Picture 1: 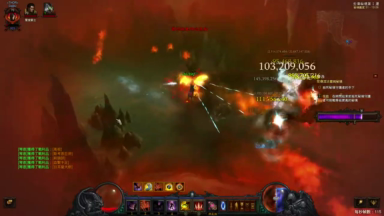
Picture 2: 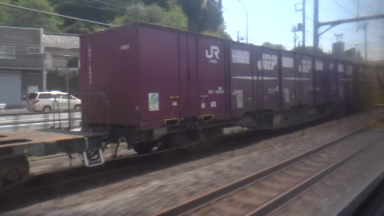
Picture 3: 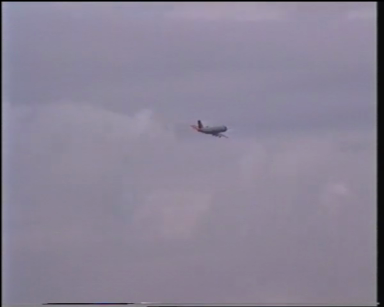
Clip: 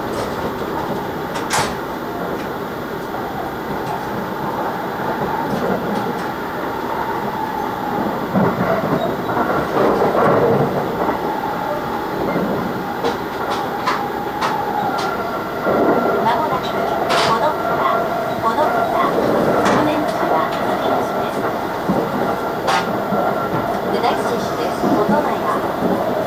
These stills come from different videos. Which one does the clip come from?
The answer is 2